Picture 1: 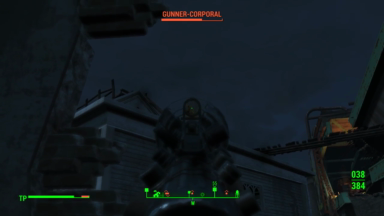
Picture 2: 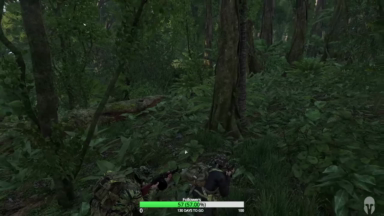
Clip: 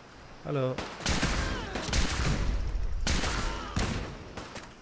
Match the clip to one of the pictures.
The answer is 1